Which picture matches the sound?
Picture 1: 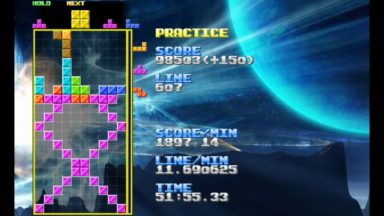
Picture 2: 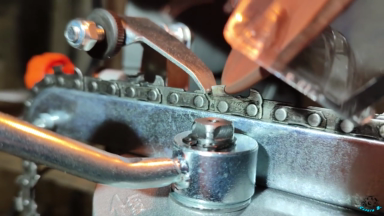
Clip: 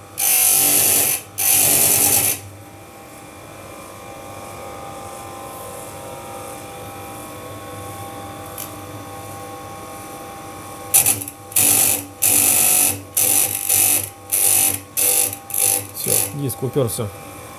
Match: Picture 2